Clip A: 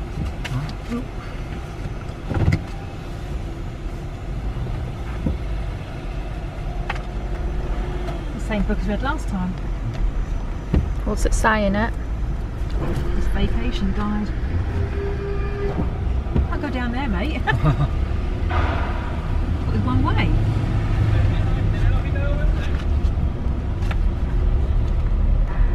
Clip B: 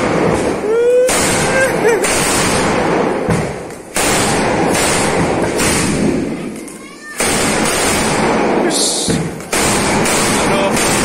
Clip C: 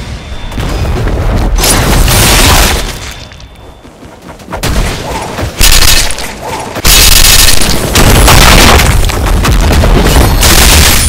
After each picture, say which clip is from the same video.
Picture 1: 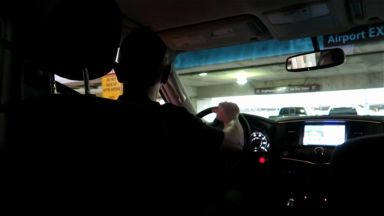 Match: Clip A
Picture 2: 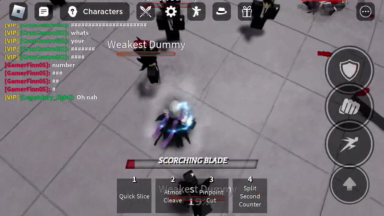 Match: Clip C